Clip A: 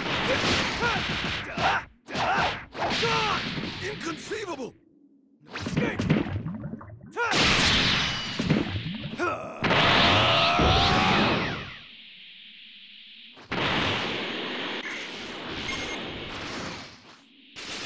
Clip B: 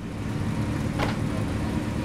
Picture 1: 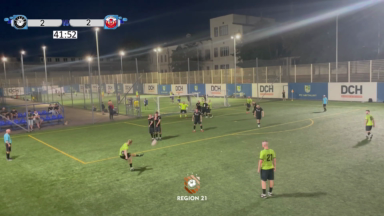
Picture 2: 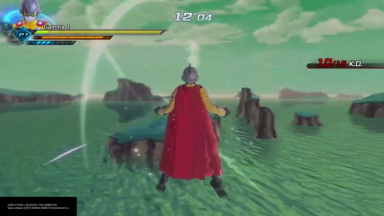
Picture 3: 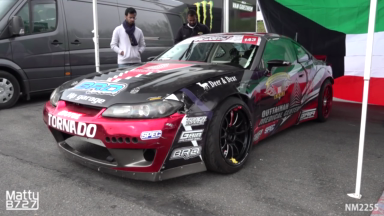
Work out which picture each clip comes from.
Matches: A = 2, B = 3